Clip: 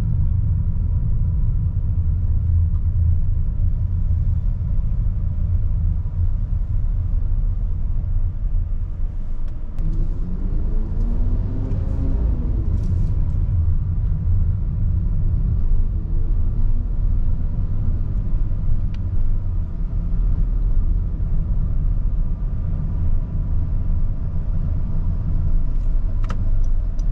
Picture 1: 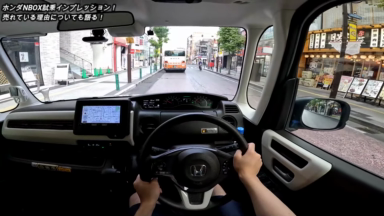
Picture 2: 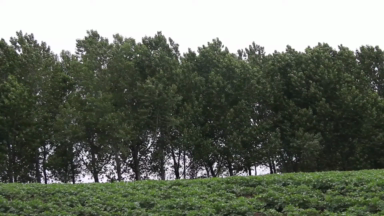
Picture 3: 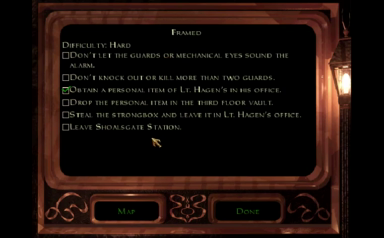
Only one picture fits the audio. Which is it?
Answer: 1